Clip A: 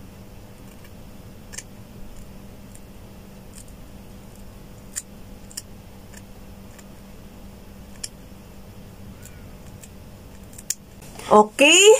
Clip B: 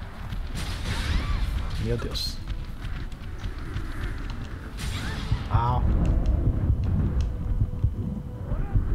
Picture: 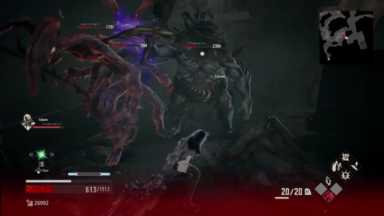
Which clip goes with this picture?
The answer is B